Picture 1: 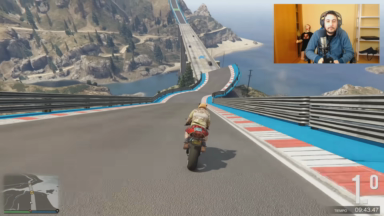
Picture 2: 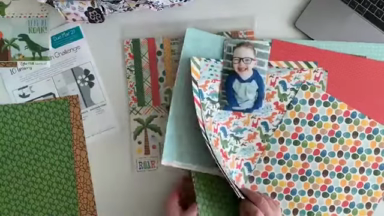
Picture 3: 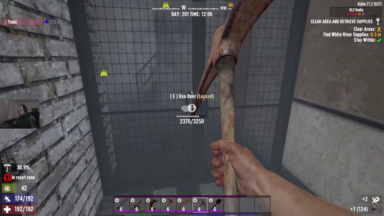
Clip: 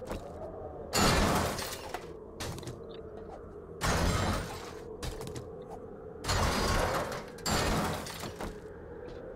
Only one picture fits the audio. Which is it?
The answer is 3